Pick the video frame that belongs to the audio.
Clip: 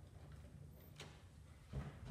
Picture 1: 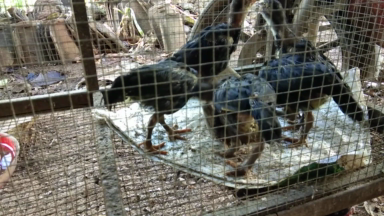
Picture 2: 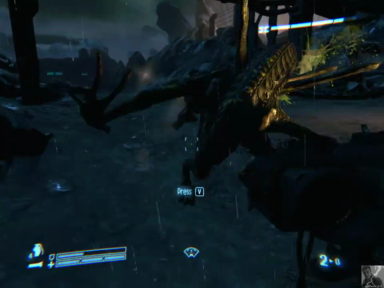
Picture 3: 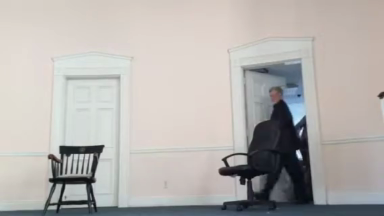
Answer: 3